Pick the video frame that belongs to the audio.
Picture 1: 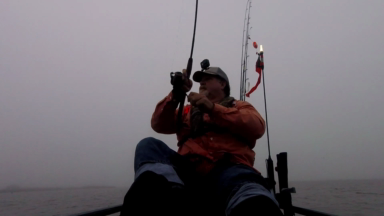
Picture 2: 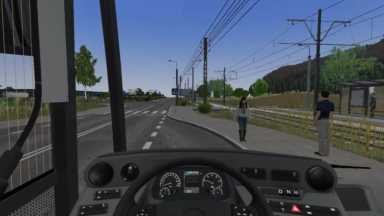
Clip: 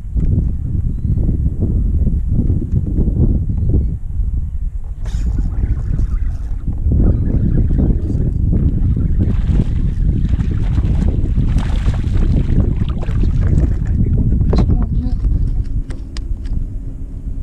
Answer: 1